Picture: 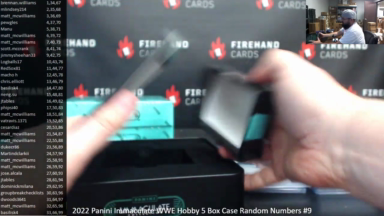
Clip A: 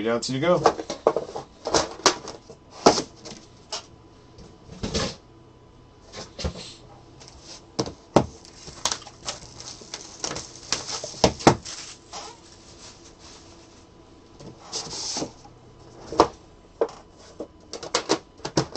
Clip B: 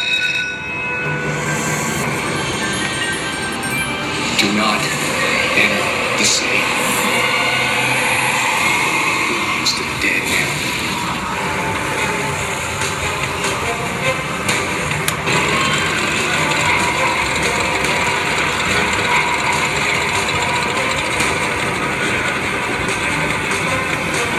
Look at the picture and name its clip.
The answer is A